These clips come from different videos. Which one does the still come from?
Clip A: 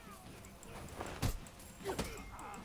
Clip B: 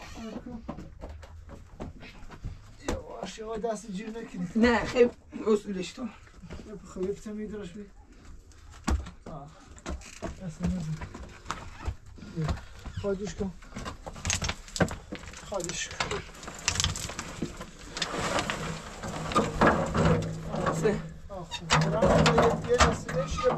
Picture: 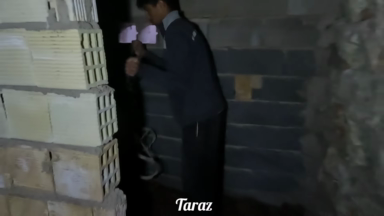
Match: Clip B